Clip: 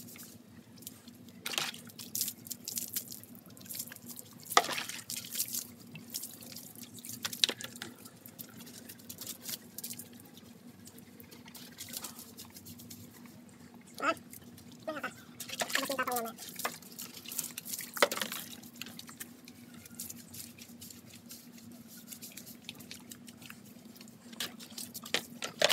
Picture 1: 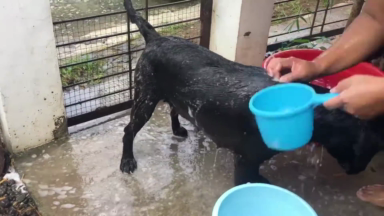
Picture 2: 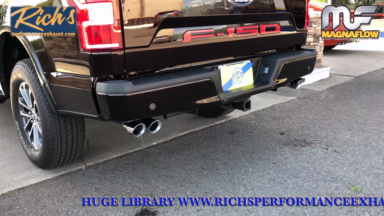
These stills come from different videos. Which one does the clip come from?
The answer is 1